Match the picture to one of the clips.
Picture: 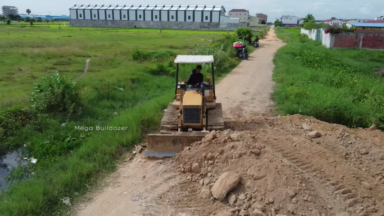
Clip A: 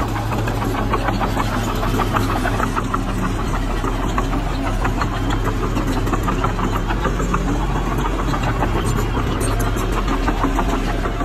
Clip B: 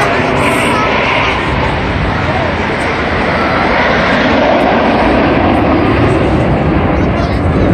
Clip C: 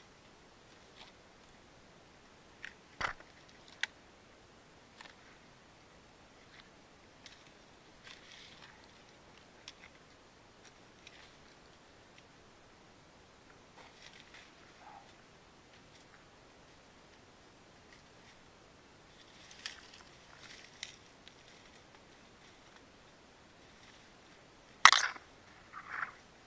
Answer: A